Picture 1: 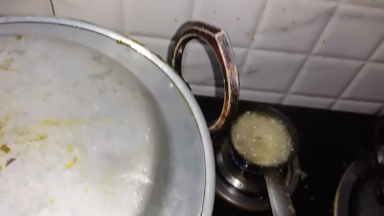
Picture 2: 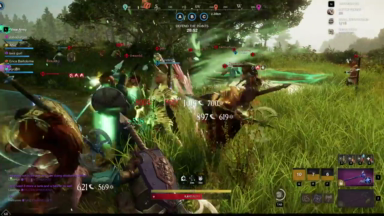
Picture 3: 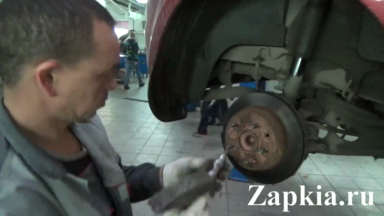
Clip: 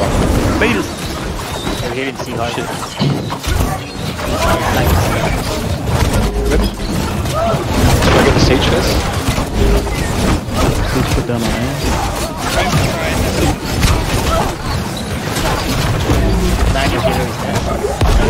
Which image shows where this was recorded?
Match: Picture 2